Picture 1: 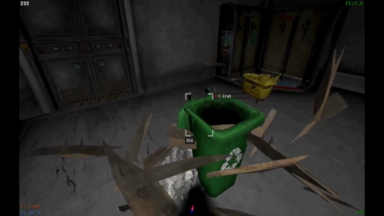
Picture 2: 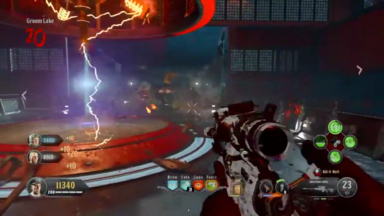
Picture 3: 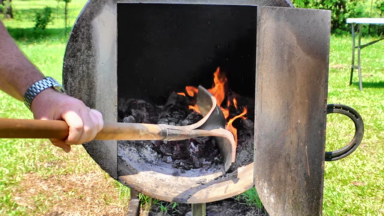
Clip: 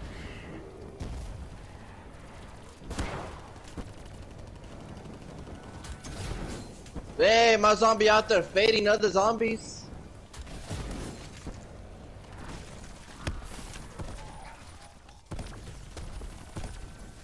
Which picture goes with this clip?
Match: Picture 2